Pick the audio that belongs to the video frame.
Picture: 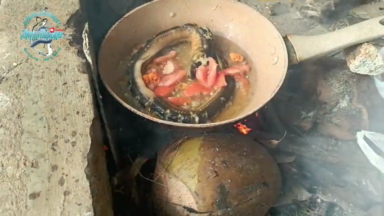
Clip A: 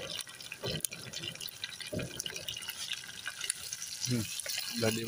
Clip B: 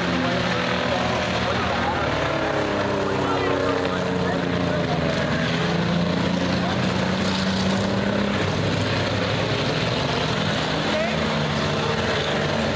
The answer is A